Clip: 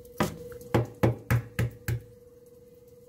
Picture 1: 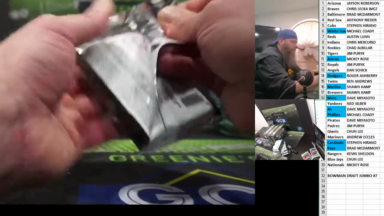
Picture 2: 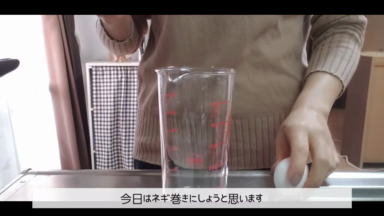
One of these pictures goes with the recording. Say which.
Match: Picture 2